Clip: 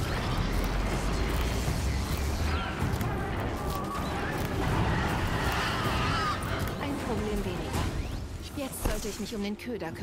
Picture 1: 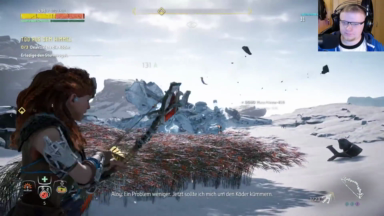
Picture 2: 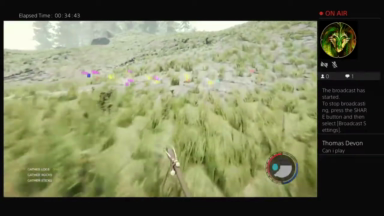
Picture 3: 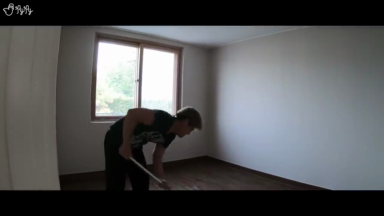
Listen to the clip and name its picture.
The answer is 1